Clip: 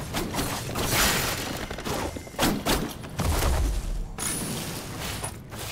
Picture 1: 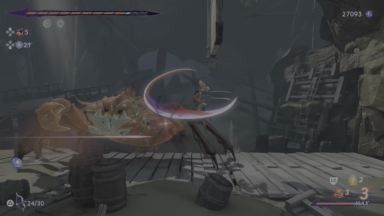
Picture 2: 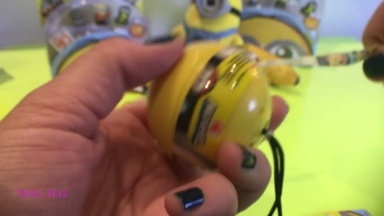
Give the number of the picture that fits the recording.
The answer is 1